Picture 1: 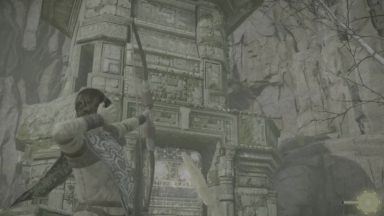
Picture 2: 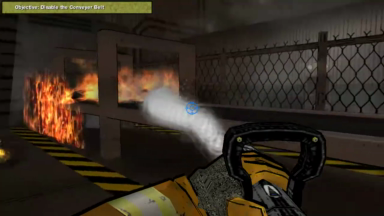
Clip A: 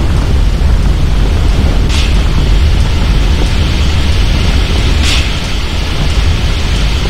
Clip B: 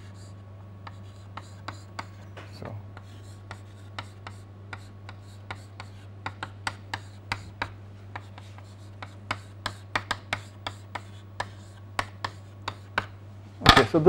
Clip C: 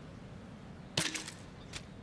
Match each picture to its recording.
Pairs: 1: C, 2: A